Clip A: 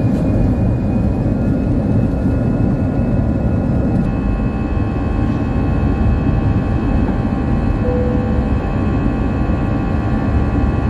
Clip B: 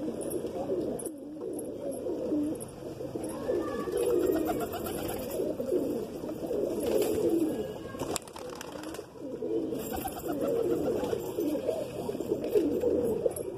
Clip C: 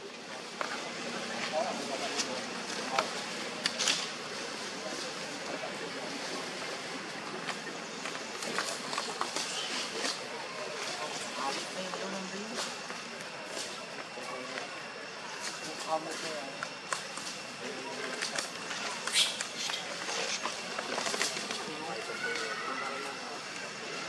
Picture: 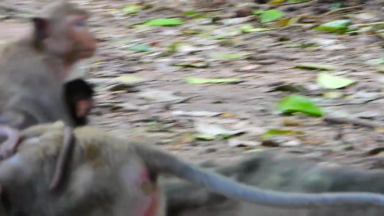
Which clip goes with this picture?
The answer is C